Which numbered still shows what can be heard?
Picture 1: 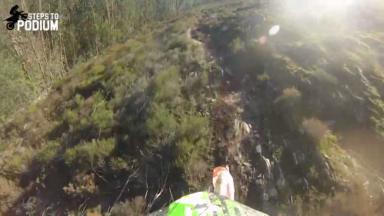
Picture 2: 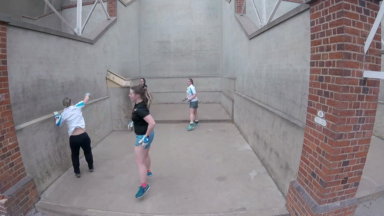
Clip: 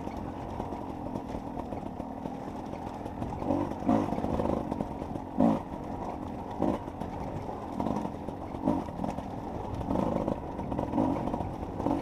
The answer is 1